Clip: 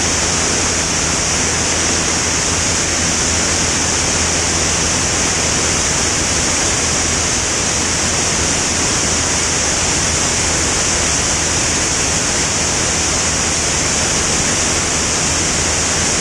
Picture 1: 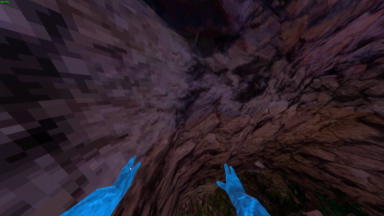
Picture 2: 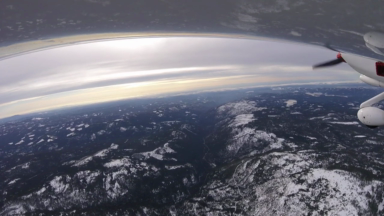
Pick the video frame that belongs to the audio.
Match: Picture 2